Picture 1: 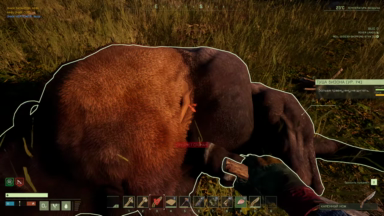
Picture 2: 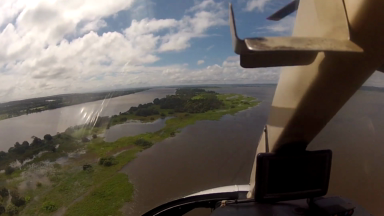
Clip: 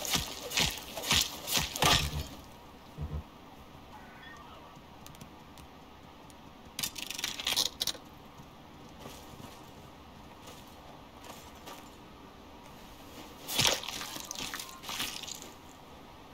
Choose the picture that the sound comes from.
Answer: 1